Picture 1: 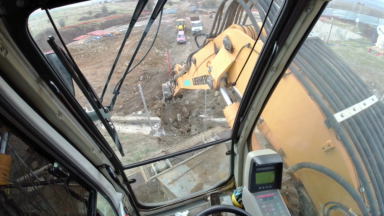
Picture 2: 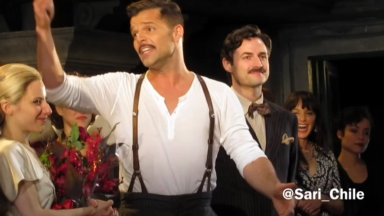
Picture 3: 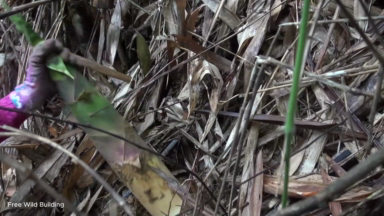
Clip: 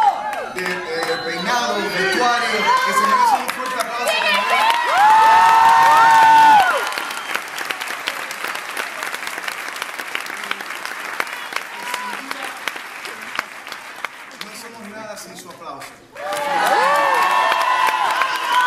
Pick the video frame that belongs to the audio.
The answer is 2